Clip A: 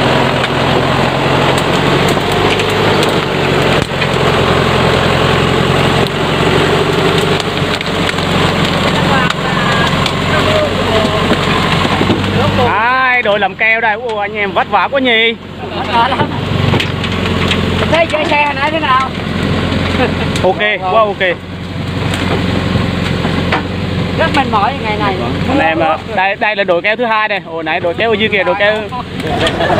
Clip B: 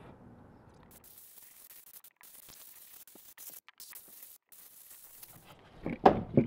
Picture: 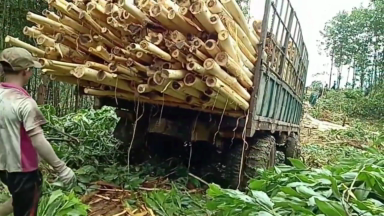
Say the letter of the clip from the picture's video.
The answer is A